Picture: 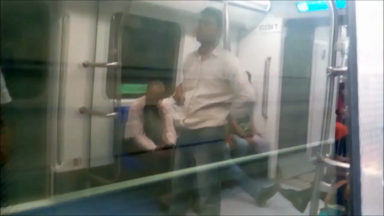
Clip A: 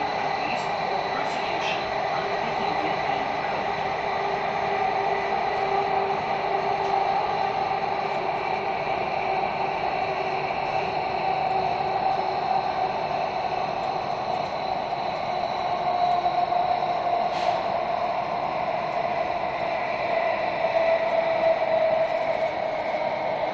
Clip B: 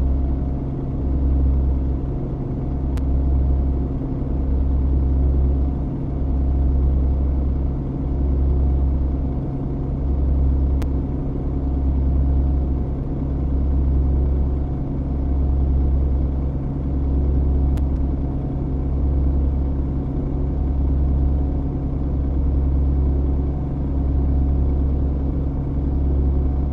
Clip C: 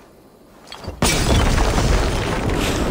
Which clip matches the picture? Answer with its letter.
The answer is A